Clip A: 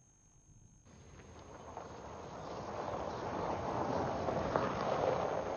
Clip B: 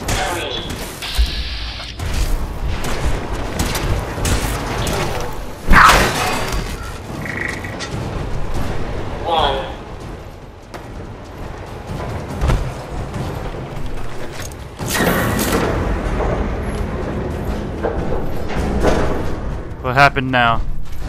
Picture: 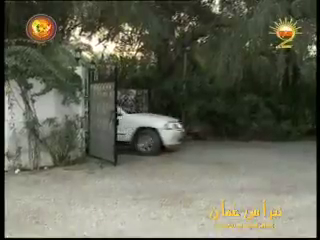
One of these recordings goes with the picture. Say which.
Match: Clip A